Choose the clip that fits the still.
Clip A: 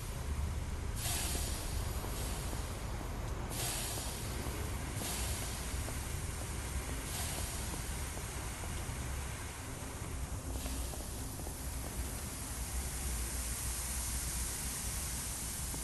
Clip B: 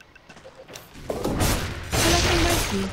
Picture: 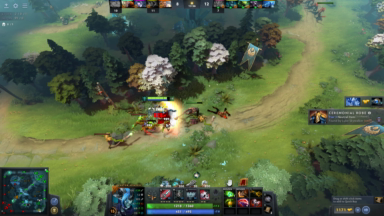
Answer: B